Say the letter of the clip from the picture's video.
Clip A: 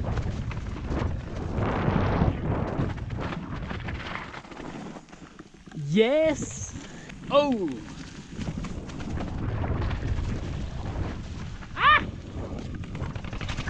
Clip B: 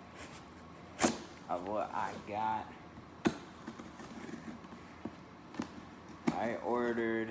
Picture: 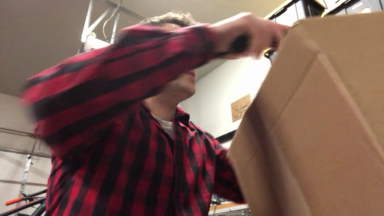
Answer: B